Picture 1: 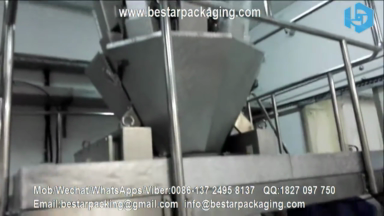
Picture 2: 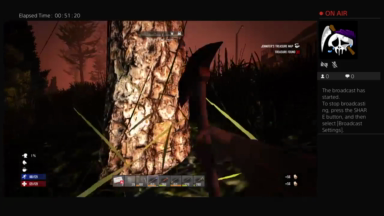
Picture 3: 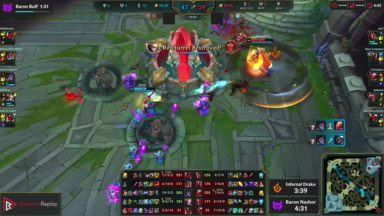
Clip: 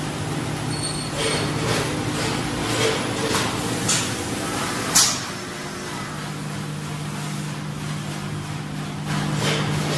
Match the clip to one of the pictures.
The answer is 1